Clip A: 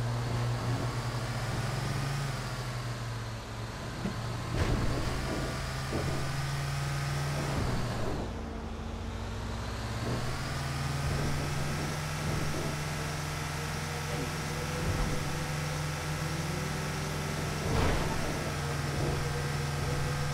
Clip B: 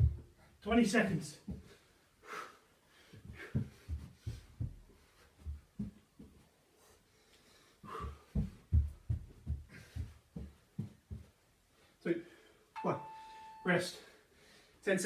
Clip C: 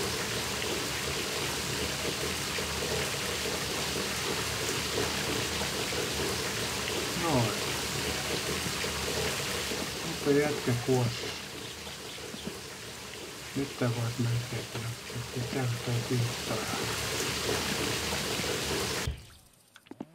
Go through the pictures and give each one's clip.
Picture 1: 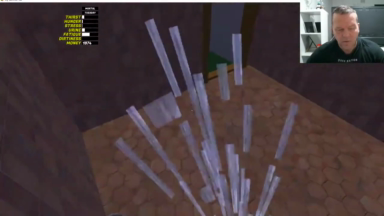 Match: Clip C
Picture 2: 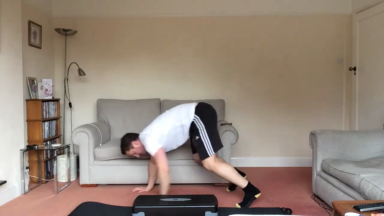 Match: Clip B